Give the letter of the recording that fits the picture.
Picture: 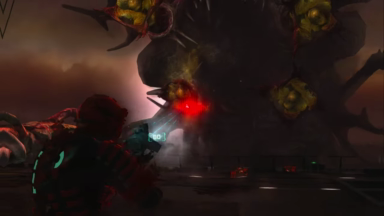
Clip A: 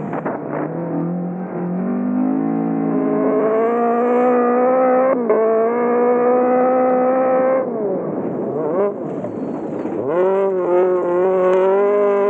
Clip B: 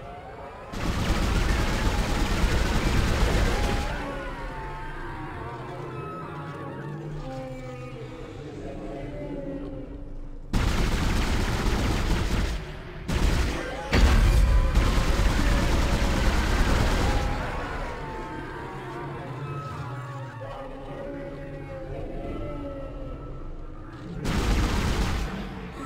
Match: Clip B